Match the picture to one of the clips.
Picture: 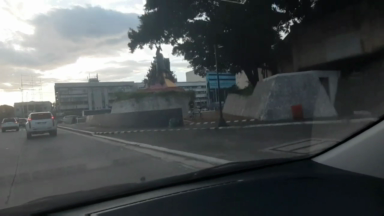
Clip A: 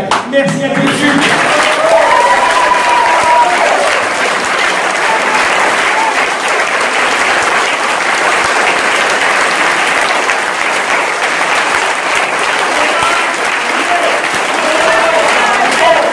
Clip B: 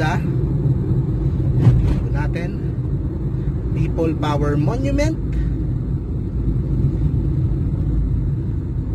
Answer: B